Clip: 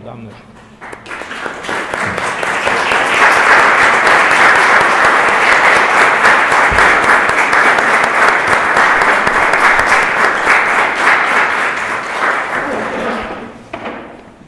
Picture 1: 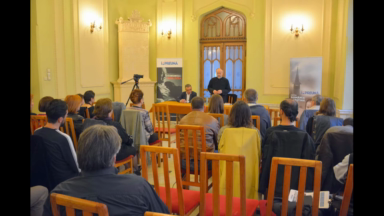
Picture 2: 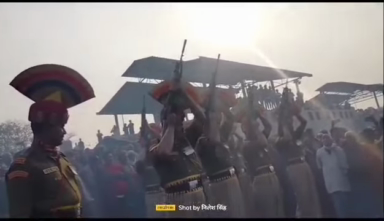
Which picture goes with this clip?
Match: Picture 1